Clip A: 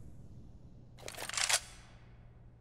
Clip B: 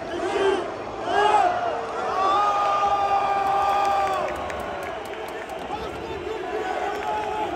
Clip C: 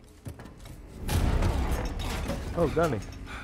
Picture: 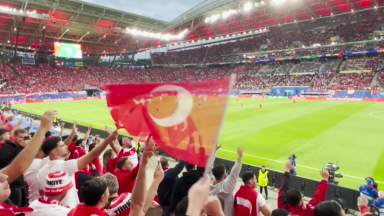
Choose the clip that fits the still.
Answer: B